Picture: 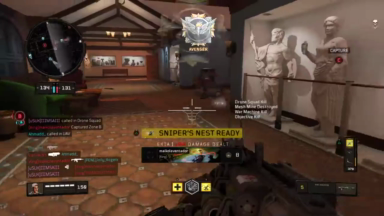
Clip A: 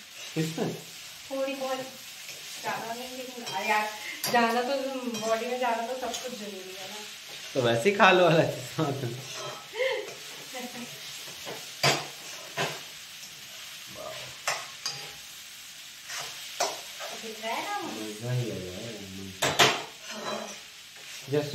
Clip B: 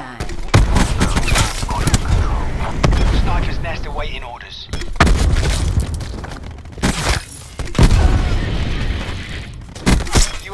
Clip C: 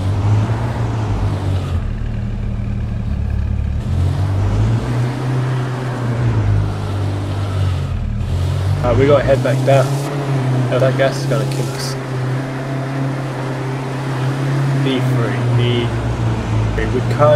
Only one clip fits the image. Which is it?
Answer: B